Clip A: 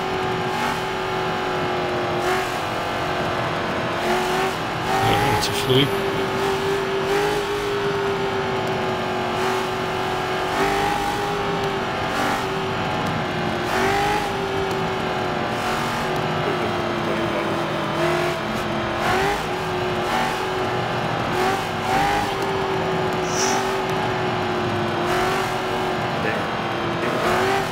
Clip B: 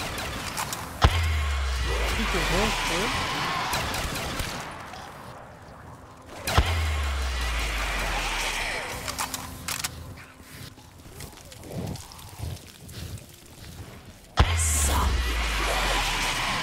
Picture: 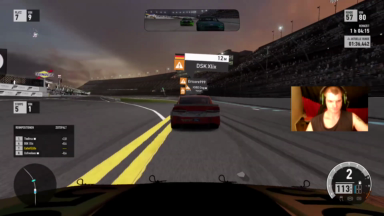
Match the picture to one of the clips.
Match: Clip A